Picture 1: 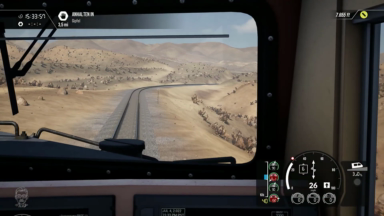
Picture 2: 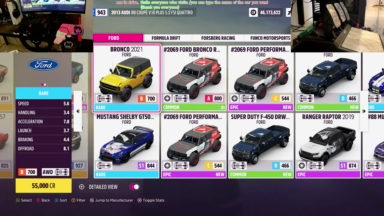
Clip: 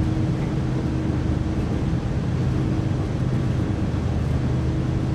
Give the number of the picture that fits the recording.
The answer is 1